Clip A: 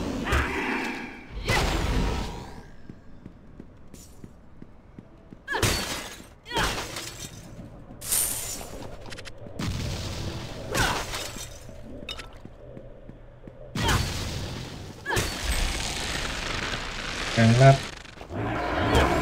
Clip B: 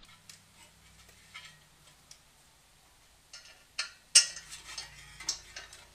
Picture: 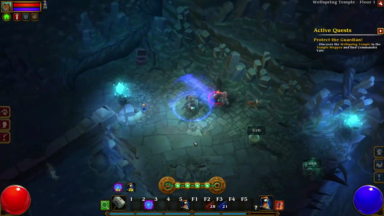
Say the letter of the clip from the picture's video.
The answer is A